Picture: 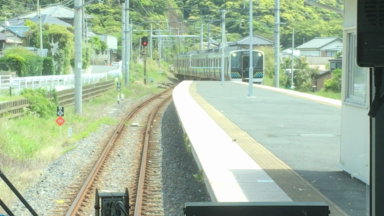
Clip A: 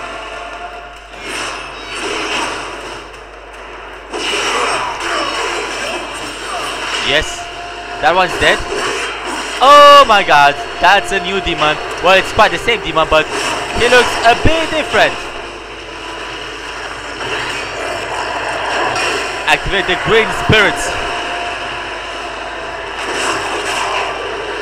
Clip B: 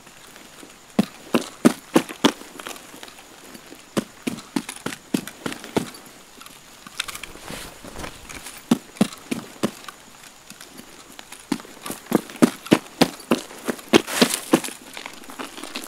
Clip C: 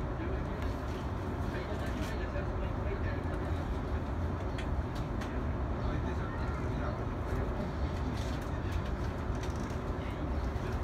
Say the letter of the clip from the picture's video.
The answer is C